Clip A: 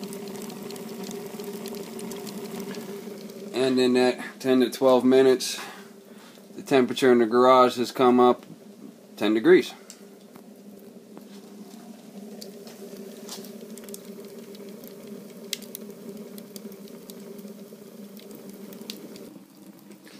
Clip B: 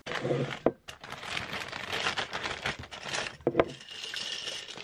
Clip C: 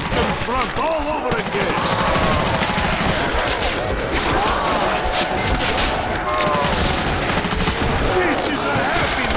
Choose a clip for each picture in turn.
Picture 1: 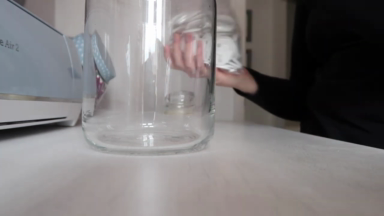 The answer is B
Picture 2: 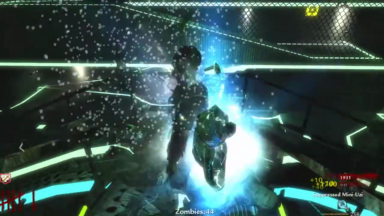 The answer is C